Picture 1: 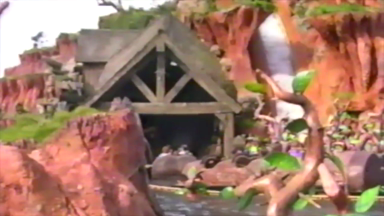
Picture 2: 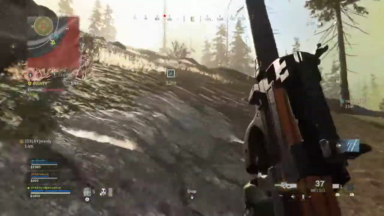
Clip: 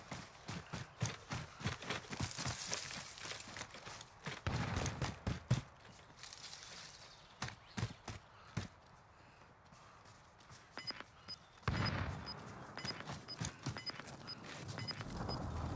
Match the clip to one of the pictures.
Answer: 2